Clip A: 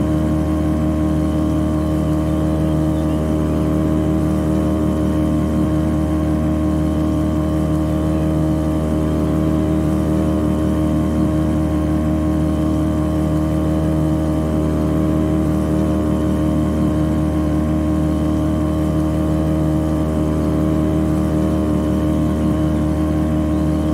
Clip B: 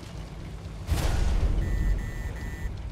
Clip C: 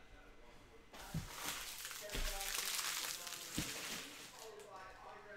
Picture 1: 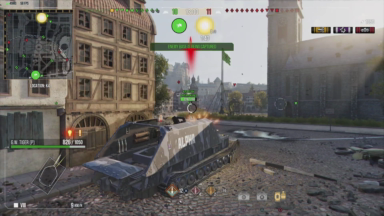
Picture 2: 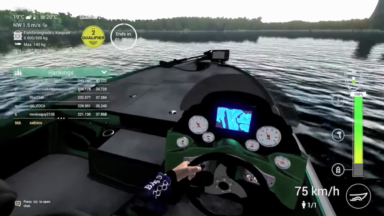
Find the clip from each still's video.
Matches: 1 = B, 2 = A